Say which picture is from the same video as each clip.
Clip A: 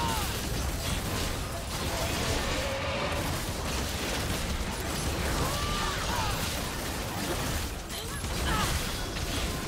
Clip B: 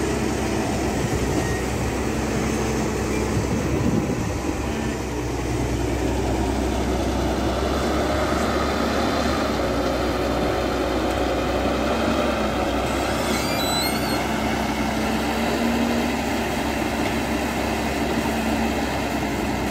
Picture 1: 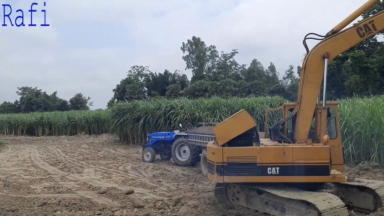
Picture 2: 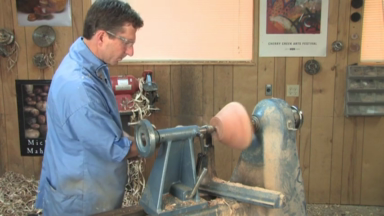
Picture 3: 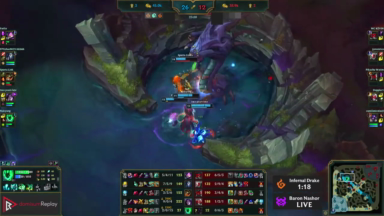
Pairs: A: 3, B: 1